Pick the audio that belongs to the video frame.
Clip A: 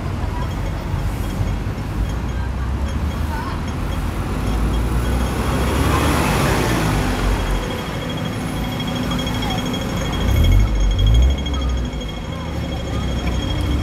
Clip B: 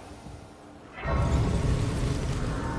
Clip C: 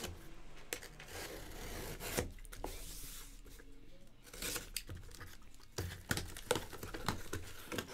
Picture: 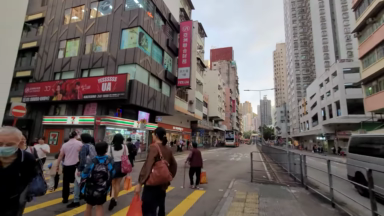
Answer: A